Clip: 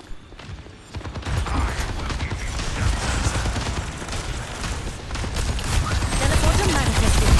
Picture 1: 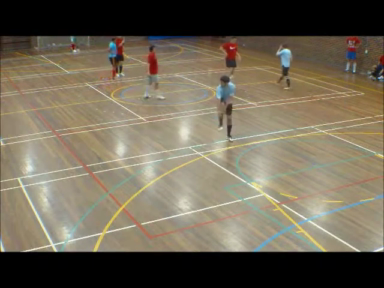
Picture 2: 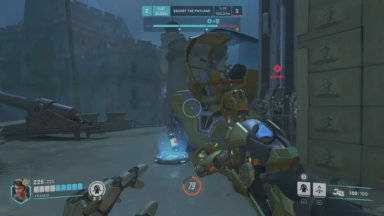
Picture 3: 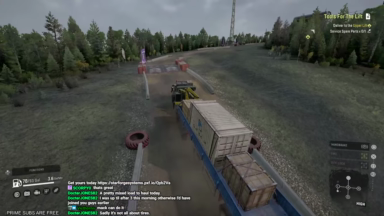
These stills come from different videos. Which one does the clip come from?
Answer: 2